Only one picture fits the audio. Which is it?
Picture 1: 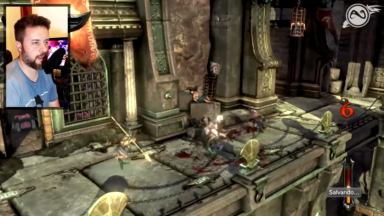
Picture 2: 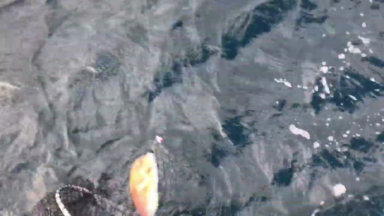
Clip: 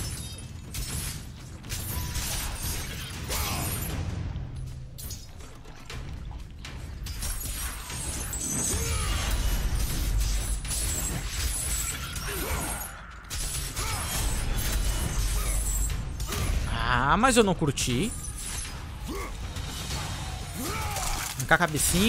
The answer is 1